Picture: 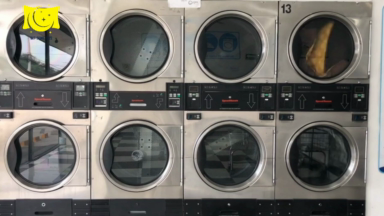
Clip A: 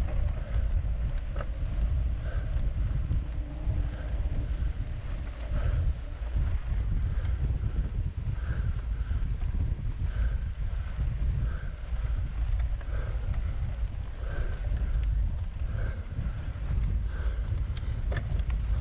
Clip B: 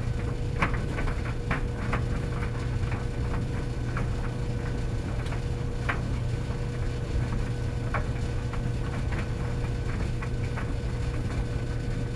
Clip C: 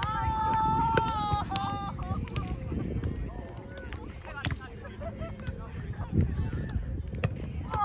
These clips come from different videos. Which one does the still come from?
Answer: B